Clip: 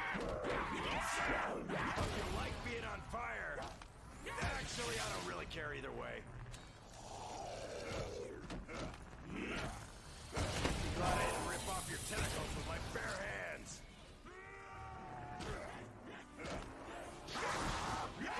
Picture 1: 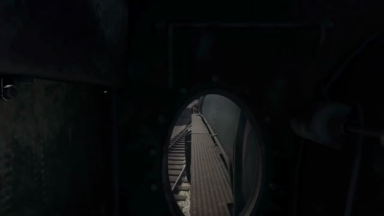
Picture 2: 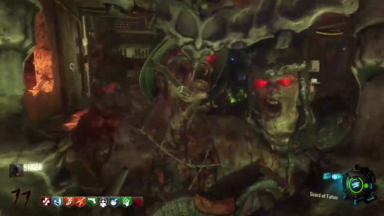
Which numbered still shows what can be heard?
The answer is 2